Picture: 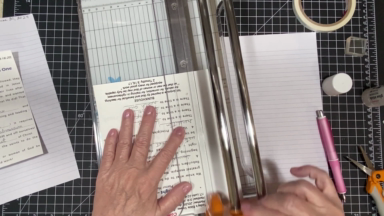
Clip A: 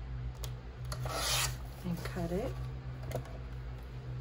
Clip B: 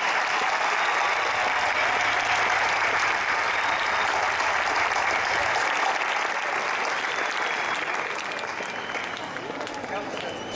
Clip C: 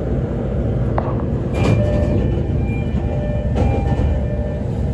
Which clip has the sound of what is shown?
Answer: A